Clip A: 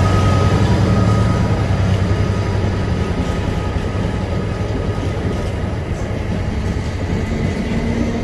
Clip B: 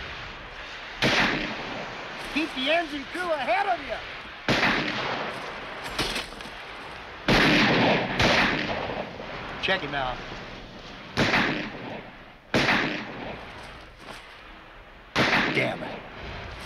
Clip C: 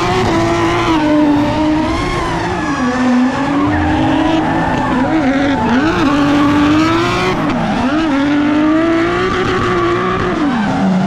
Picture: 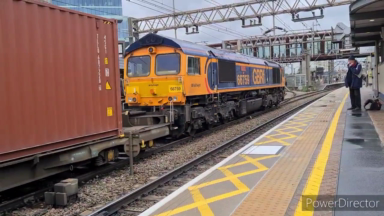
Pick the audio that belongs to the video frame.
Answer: A